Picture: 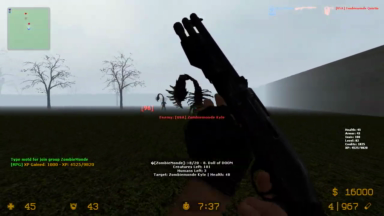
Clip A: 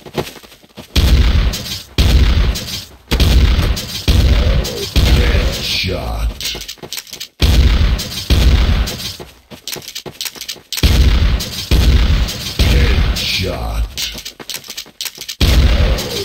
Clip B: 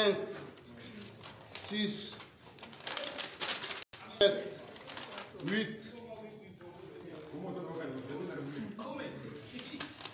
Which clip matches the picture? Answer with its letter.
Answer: A